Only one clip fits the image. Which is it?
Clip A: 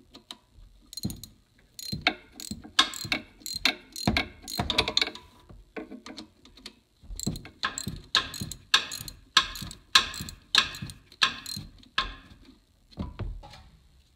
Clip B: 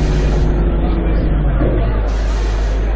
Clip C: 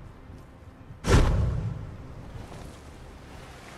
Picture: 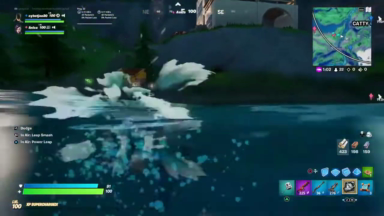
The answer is C